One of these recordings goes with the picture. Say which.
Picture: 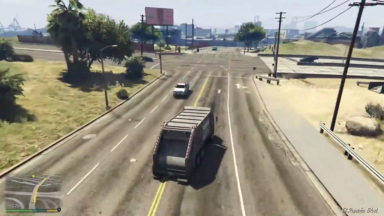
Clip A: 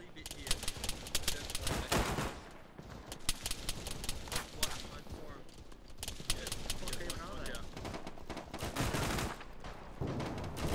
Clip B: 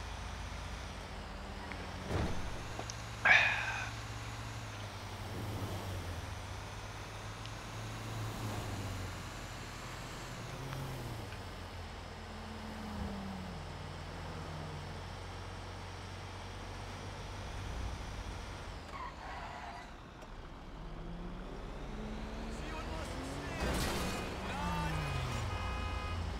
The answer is B